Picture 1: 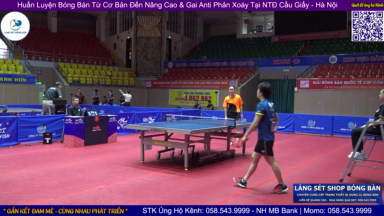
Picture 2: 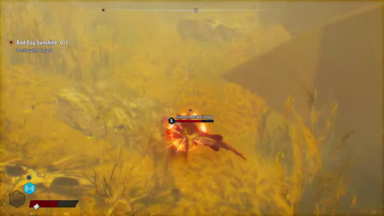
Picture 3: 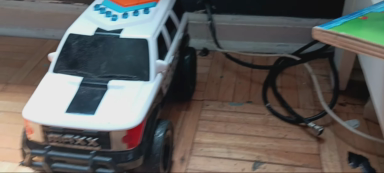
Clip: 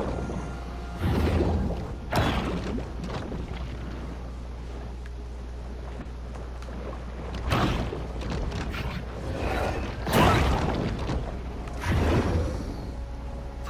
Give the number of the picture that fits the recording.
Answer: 2